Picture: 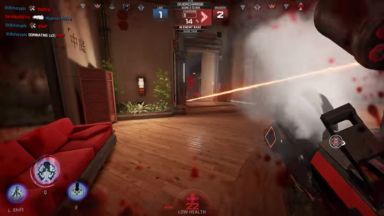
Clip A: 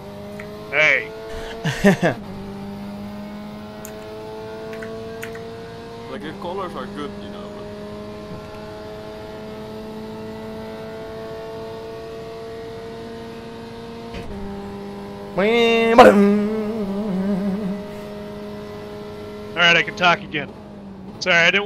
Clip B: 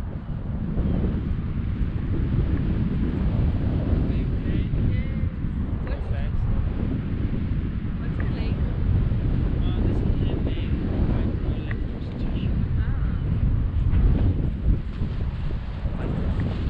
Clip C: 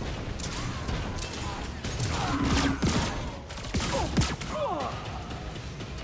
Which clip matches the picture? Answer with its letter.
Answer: C